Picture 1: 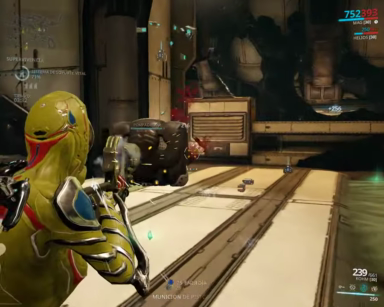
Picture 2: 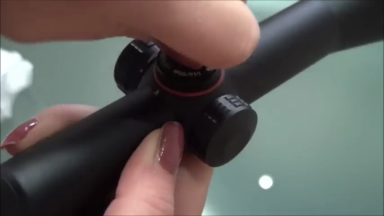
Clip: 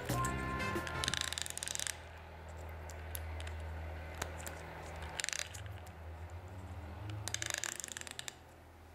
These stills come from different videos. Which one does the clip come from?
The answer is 2